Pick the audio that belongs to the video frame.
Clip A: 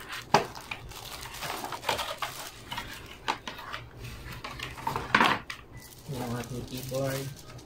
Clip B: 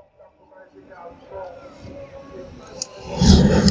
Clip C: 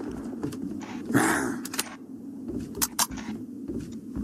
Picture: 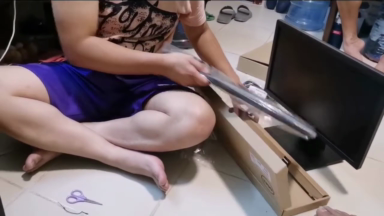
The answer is A